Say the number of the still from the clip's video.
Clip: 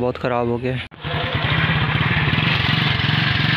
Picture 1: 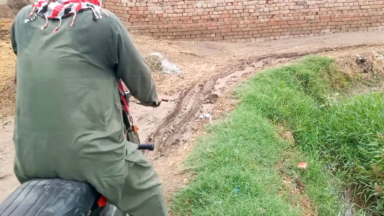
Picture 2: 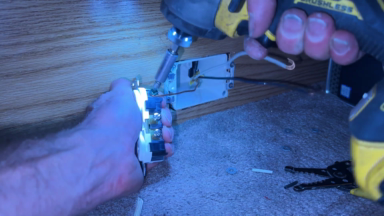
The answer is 1